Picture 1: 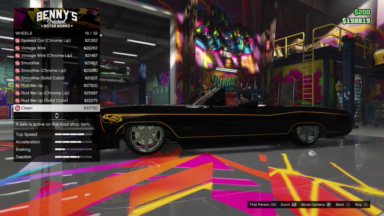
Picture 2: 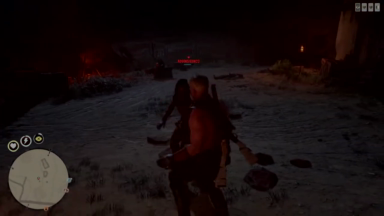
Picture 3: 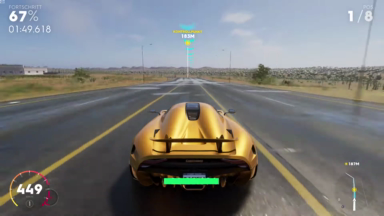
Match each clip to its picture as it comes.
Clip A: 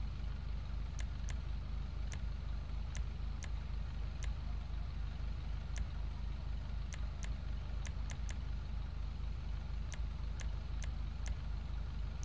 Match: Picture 1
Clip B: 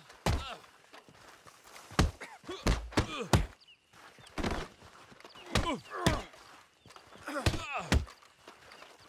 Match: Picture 2